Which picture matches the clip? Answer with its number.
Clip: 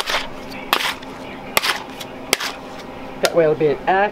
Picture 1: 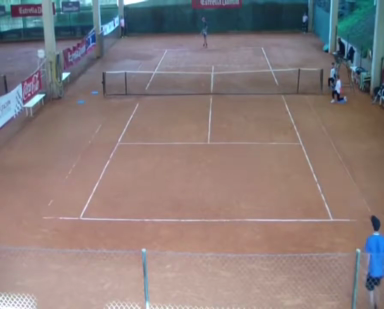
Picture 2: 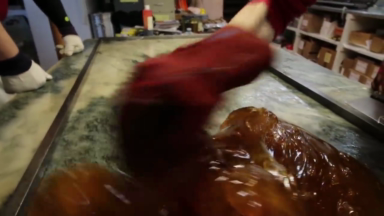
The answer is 2